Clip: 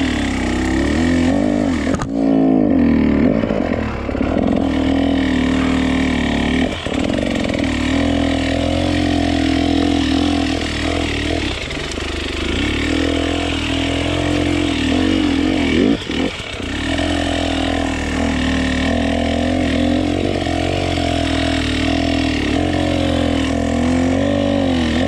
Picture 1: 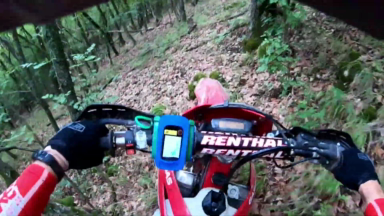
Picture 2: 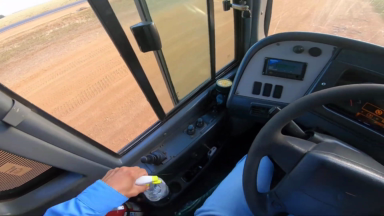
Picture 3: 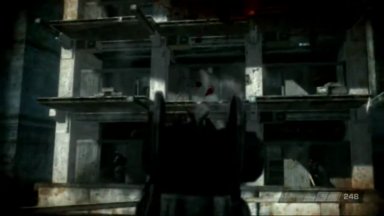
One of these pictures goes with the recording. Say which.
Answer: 1